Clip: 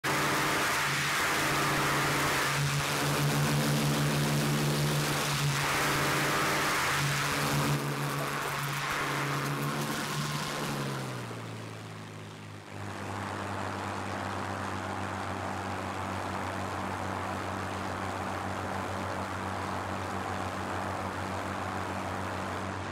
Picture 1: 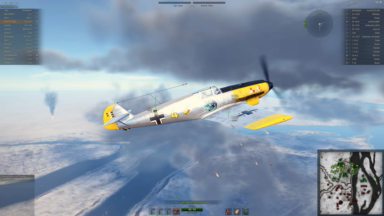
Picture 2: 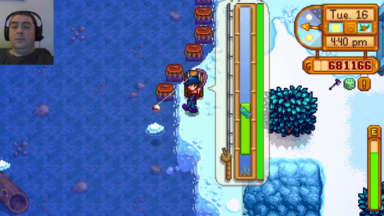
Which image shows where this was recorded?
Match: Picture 1